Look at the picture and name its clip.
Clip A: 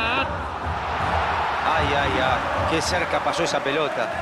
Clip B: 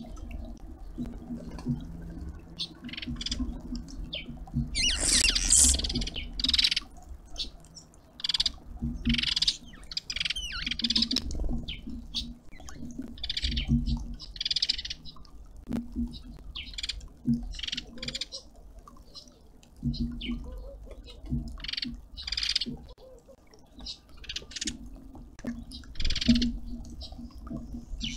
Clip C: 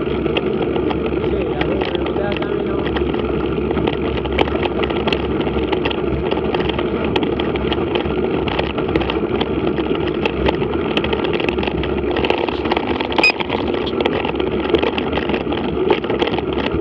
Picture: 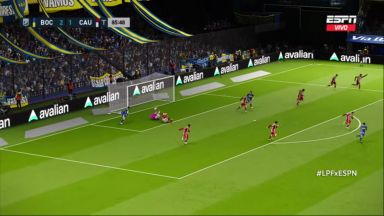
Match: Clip A